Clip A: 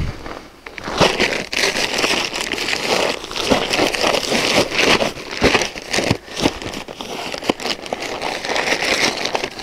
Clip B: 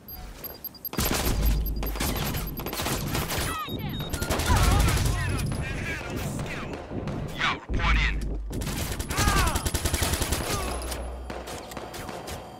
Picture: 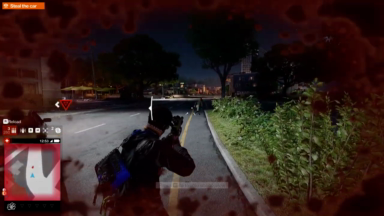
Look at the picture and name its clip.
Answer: B